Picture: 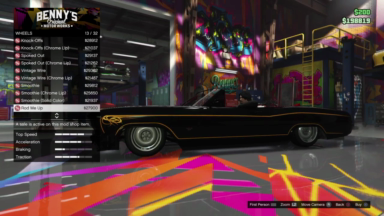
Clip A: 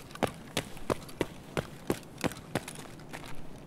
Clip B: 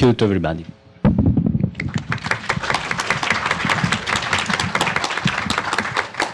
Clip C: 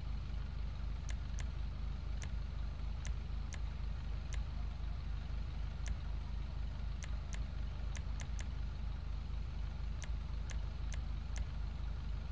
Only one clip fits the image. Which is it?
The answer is C